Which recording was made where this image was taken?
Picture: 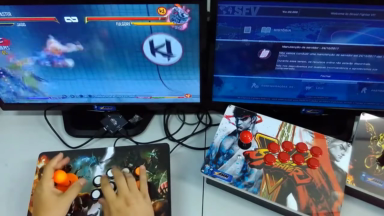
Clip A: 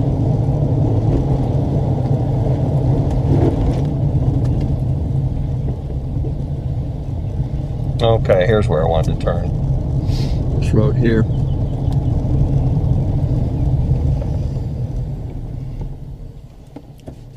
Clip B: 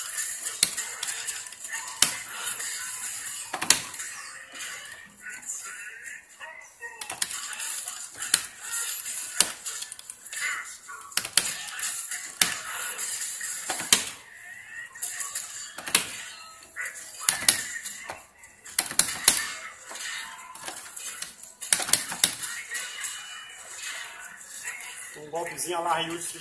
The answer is B